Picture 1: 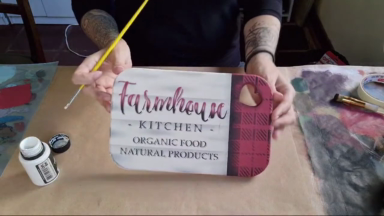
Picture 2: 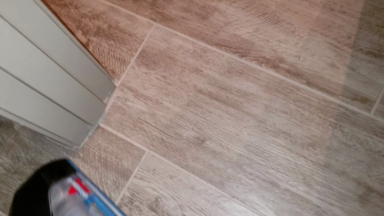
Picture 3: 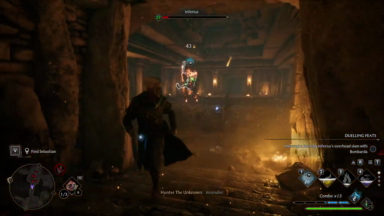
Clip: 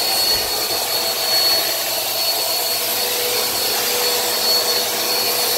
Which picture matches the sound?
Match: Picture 2